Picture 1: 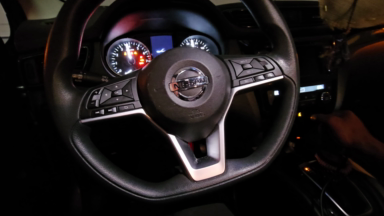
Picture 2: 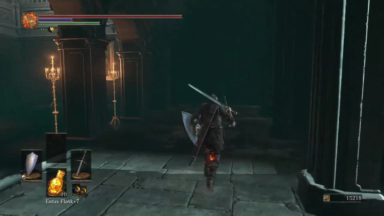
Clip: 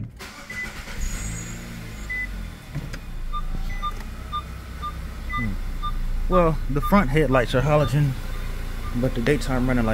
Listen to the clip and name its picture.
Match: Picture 1